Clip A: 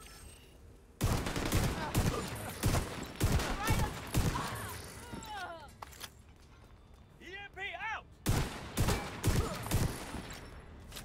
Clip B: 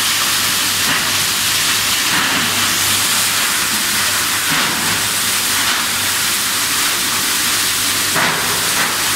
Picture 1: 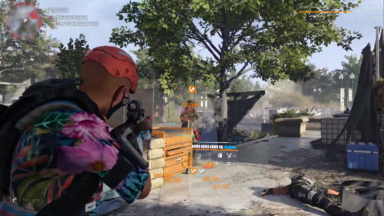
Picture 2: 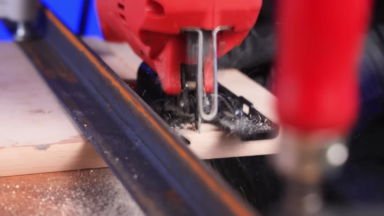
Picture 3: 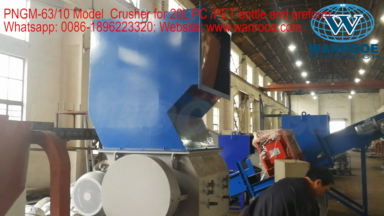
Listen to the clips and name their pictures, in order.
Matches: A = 1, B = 3